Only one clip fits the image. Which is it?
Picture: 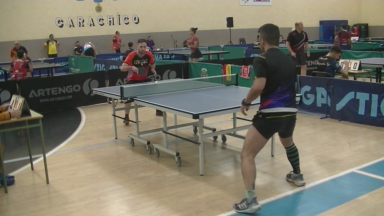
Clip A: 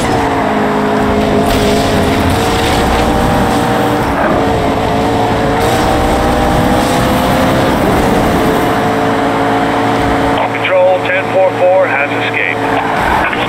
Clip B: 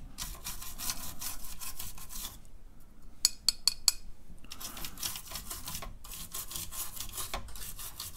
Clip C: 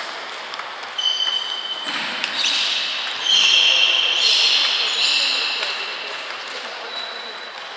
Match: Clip C